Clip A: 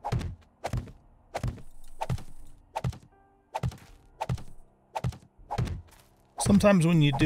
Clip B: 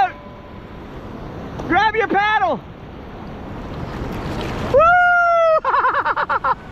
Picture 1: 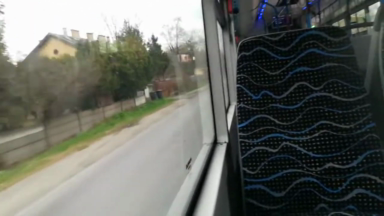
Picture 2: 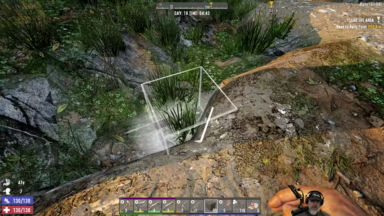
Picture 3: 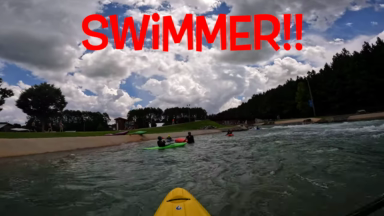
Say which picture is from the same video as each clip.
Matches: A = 2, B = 3